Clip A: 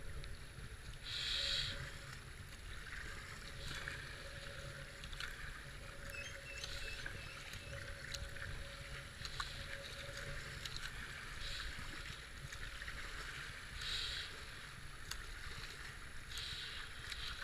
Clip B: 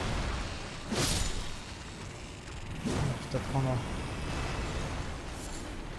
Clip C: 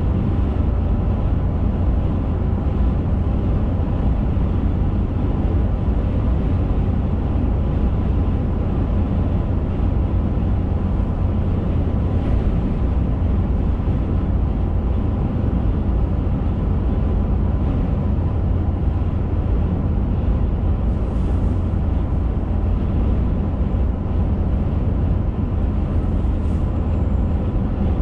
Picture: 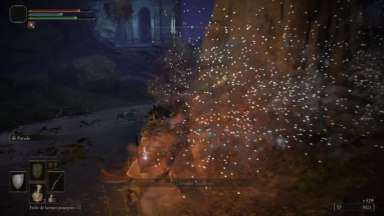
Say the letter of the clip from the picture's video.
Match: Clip B